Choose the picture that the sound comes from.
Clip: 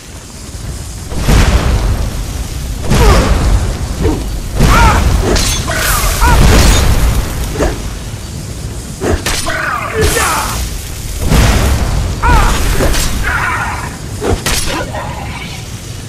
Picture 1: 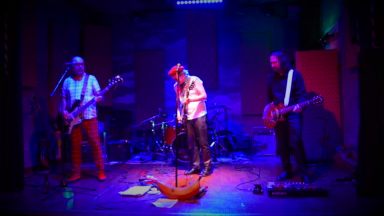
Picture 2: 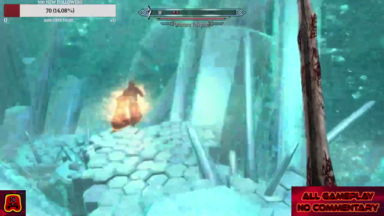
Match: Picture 2